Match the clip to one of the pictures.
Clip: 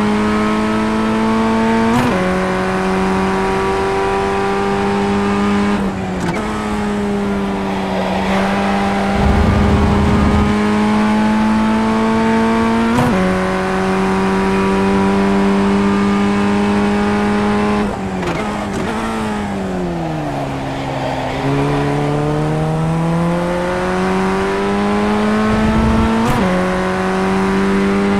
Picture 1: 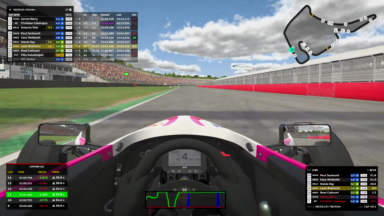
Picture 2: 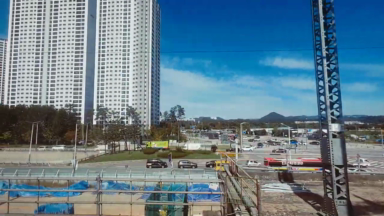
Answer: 1